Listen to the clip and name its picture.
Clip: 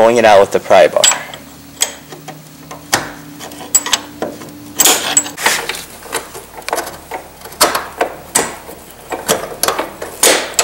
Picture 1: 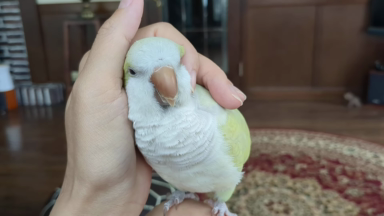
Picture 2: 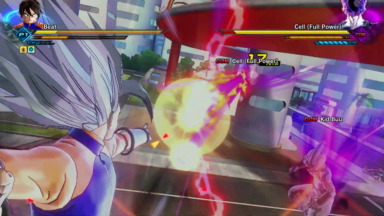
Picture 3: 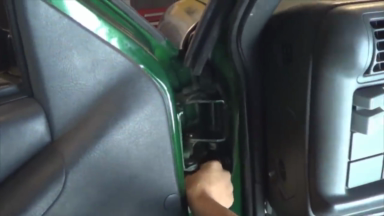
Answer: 3